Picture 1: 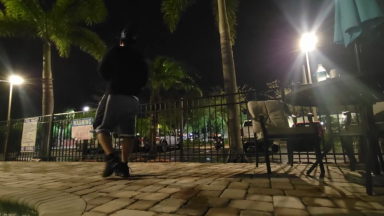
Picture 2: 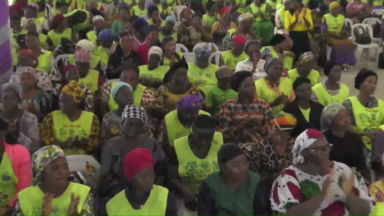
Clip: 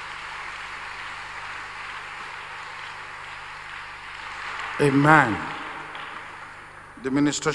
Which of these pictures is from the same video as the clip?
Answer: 2